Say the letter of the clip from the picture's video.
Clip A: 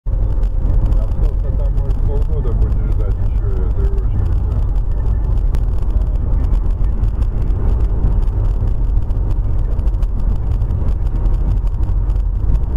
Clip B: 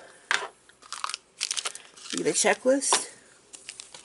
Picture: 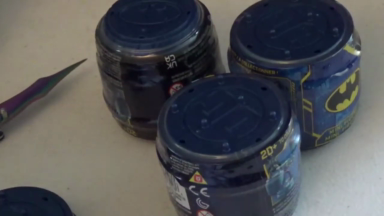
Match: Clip B